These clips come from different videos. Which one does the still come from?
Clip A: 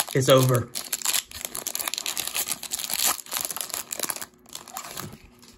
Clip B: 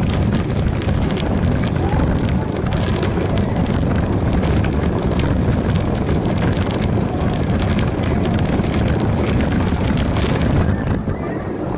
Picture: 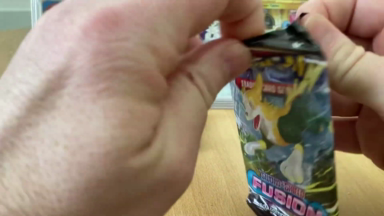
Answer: A